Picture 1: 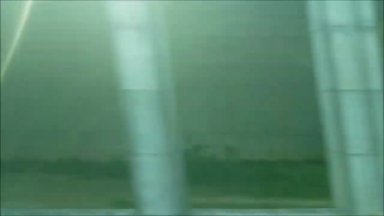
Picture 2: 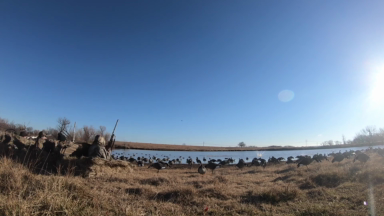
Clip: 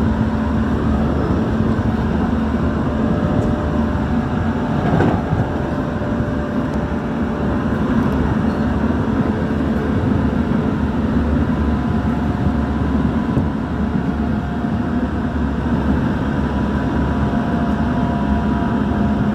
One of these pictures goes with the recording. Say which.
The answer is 1